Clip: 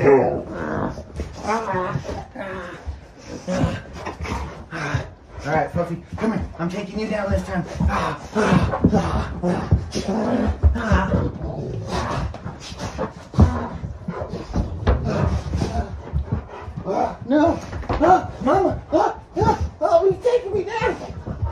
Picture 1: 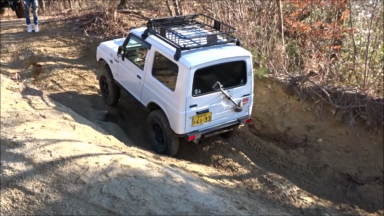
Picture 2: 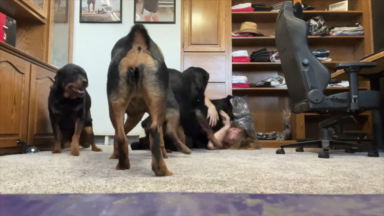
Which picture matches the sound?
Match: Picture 2